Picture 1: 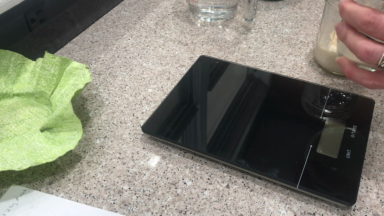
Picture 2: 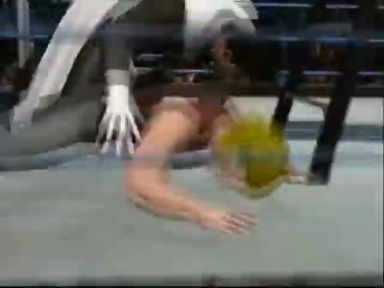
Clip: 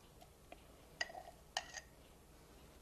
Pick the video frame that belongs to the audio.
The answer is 1